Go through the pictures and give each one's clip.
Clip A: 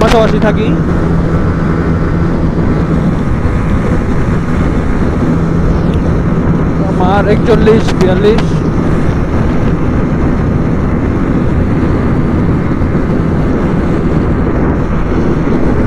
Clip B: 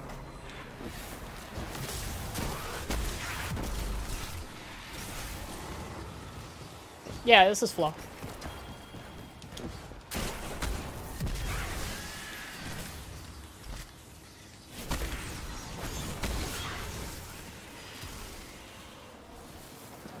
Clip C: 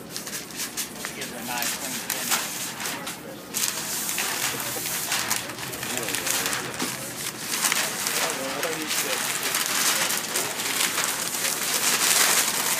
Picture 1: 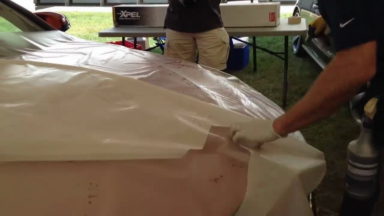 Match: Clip C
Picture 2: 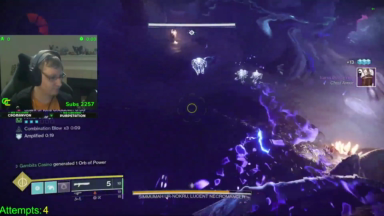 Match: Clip B